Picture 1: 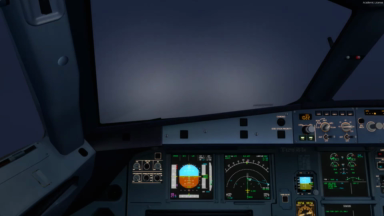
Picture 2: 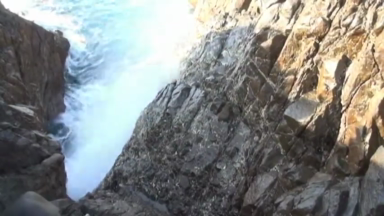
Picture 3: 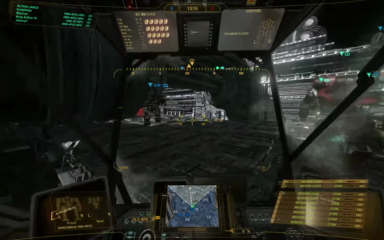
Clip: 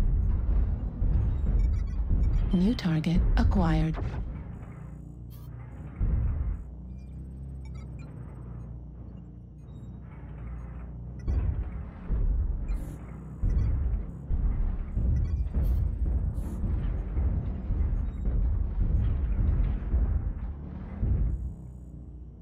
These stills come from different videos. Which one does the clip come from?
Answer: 3